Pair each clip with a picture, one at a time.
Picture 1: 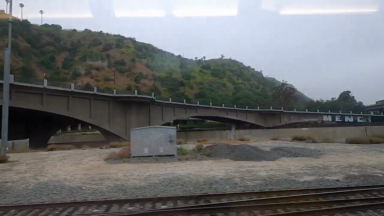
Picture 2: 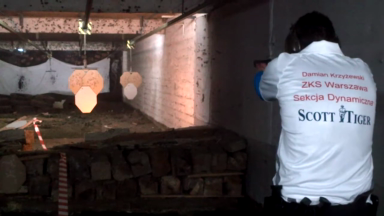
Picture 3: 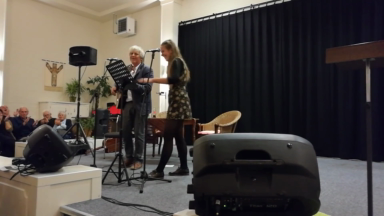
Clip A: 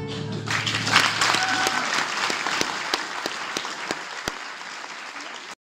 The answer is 3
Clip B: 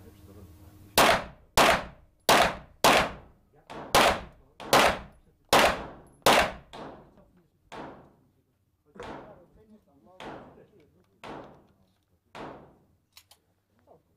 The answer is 2